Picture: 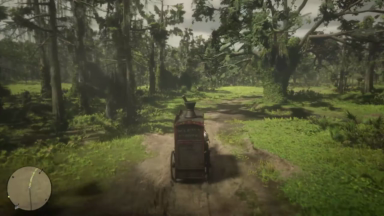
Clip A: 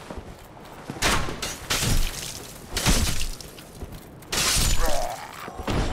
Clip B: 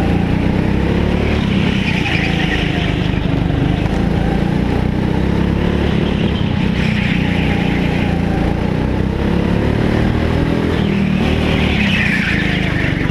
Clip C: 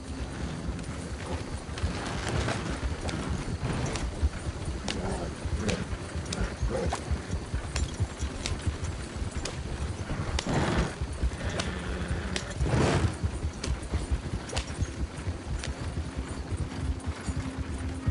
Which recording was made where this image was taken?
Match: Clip C